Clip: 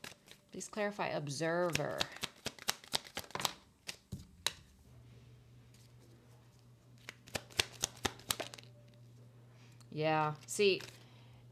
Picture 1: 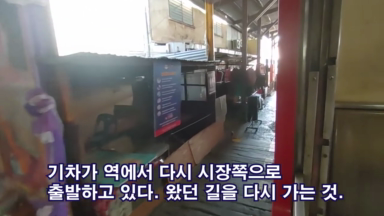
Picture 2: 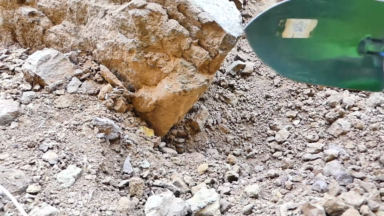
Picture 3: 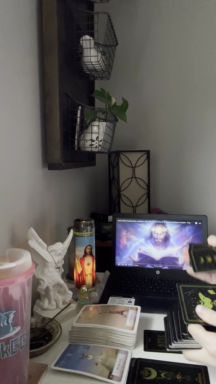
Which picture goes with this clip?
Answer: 3